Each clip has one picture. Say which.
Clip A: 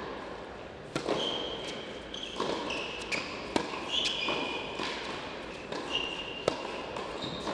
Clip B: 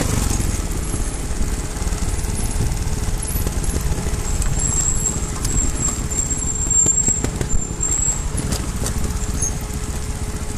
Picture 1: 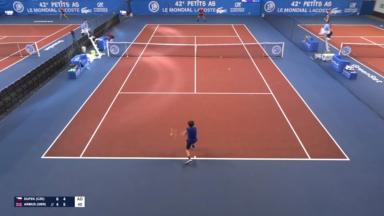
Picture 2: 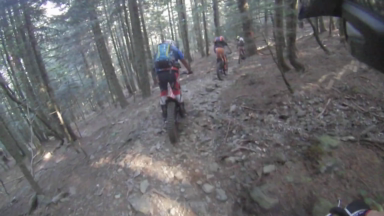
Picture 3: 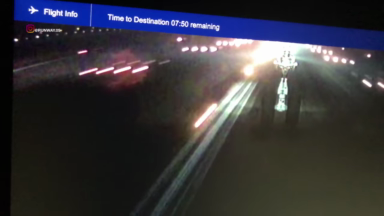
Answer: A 1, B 2